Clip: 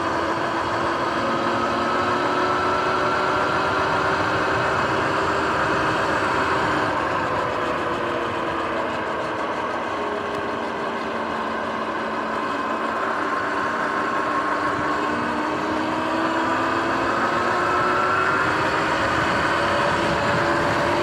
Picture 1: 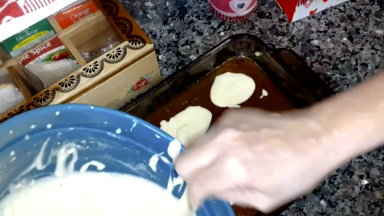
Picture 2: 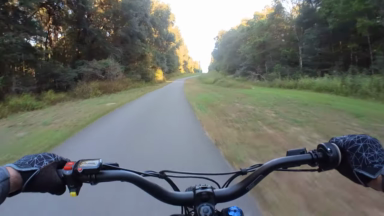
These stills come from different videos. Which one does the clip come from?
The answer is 2